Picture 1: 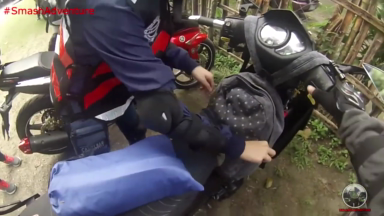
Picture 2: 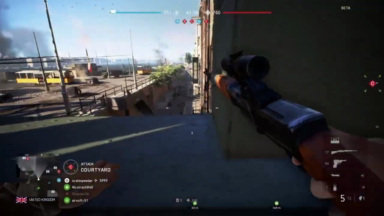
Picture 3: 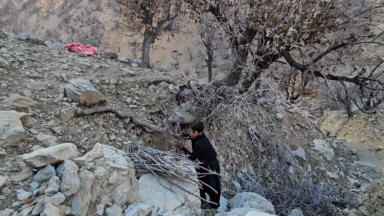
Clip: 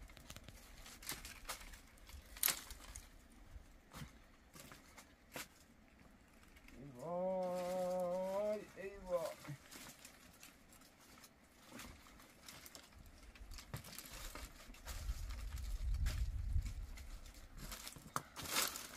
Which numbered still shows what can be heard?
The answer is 3